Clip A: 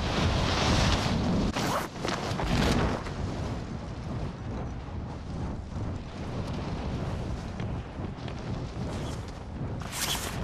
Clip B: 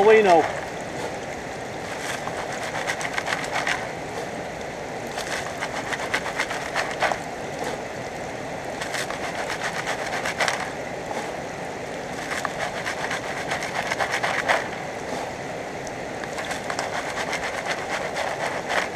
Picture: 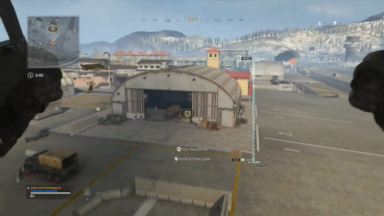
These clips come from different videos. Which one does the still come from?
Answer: A